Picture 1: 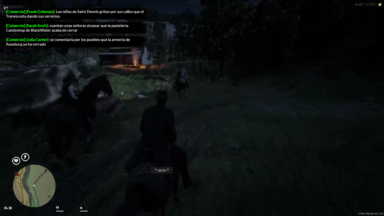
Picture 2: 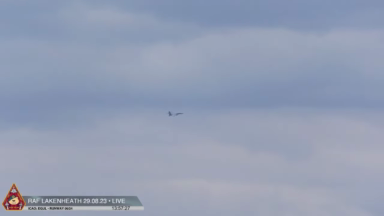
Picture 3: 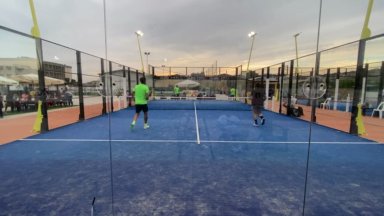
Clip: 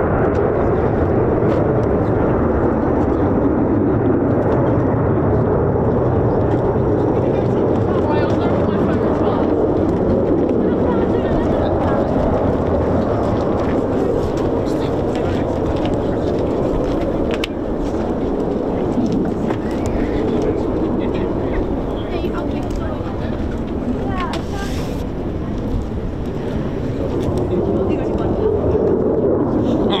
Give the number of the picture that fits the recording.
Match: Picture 2